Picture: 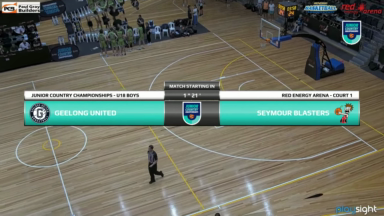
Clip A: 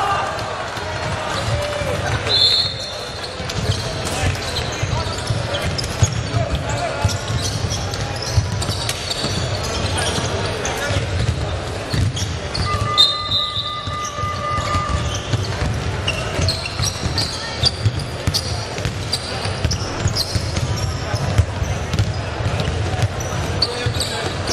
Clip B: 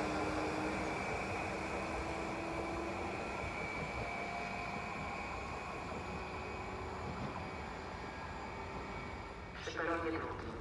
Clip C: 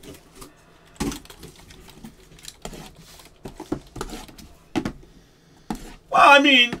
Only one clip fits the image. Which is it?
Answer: A